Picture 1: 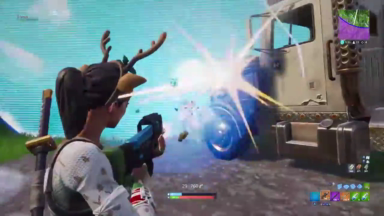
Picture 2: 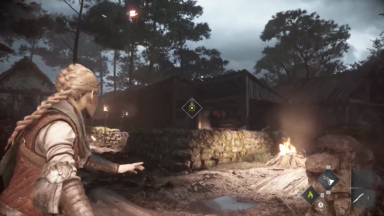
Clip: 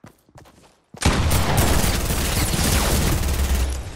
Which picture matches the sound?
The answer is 1